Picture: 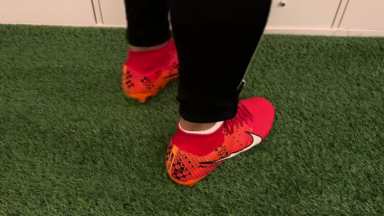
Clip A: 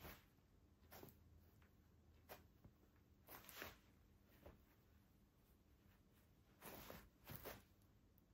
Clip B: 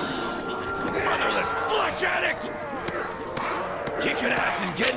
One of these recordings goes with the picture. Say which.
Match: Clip A